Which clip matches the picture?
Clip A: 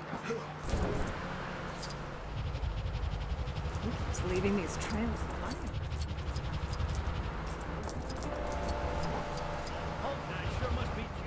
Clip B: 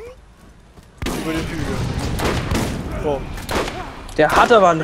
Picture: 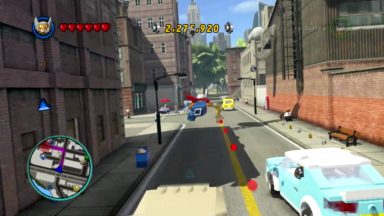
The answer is A